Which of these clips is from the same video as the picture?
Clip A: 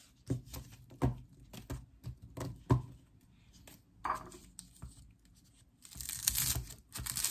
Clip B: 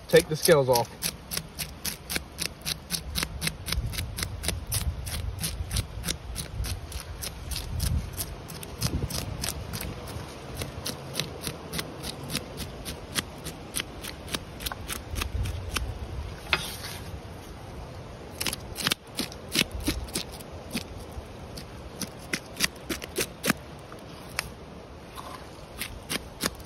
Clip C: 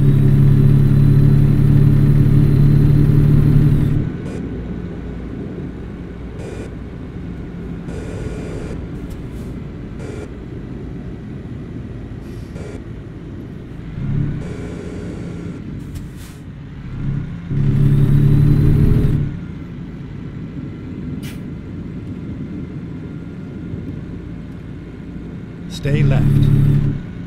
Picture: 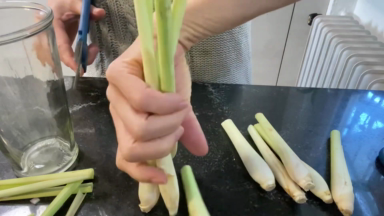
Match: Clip A